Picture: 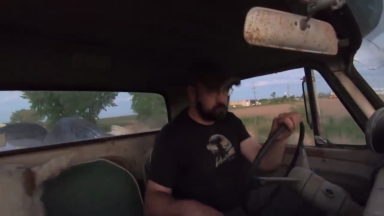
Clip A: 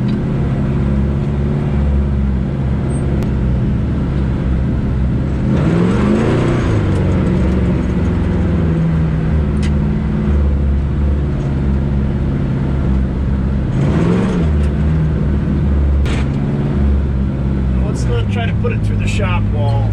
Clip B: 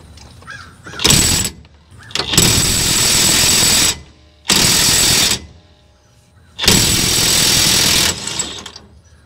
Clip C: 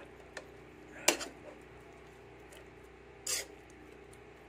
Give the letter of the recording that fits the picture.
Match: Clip A